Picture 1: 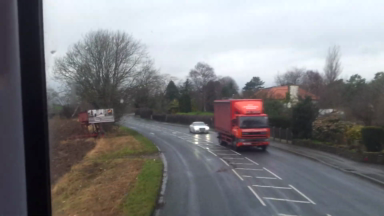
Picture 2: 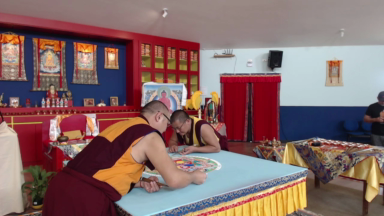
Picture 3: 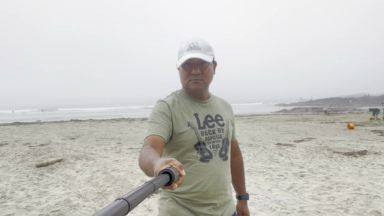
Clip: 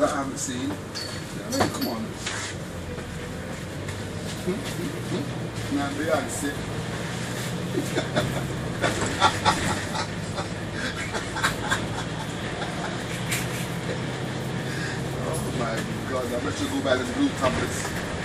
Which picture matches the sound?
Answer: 1